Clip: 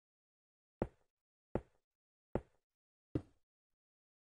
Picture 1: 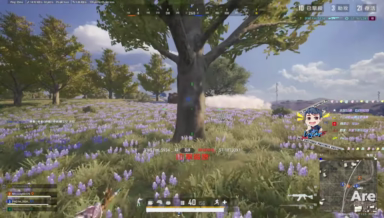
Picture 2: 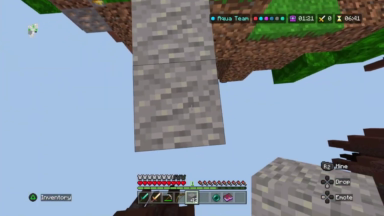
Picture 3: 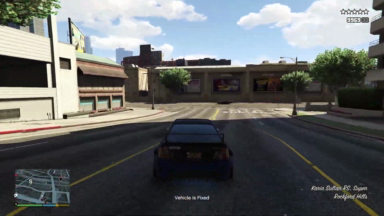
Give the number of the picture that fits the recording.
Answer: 2